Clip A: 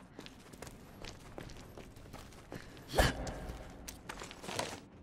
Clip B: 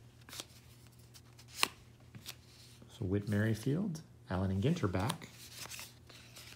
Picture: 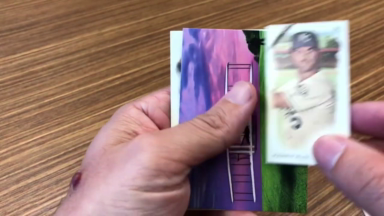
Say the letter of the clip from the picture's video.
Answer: B